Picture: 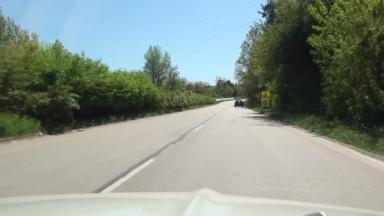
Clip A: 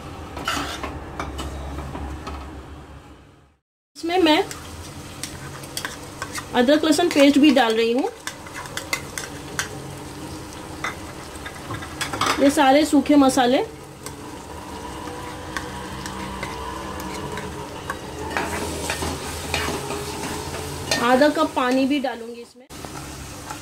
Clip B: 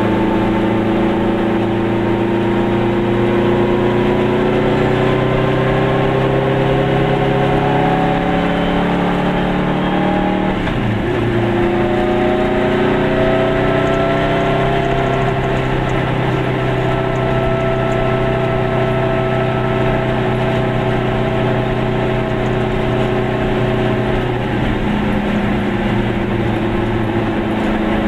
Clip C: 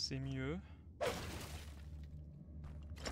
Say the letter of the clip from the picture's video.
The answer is B